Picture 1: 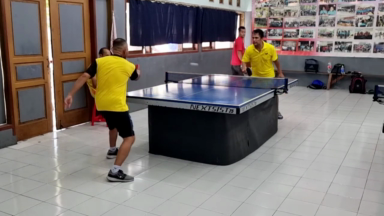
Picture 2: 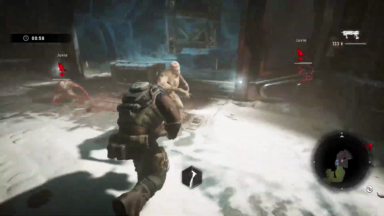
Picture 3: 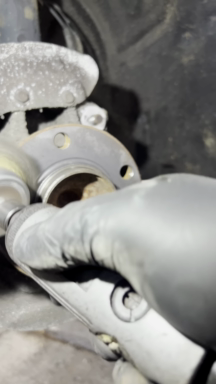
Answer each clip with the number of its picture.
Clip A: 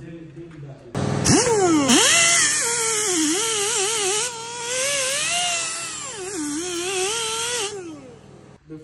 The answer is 3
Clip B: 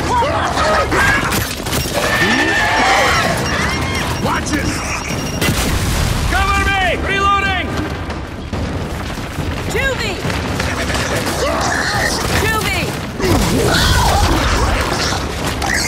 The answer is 2